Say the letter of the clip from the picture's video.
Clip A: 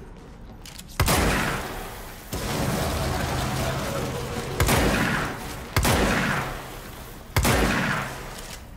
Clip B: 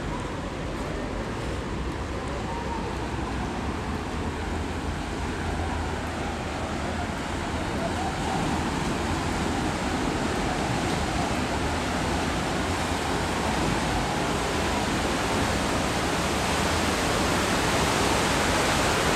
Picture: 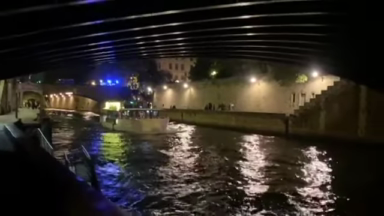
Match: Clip B